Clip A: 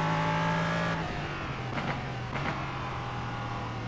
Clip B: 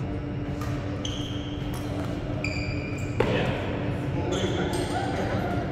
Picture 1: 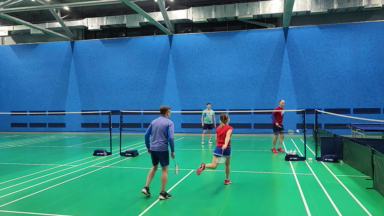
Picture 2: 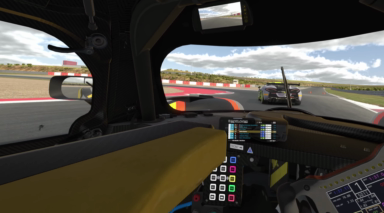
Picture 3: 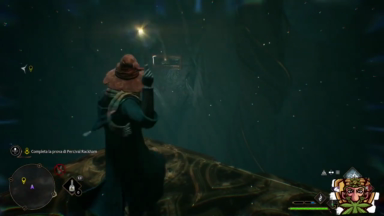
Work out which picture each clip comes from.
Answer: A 2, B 1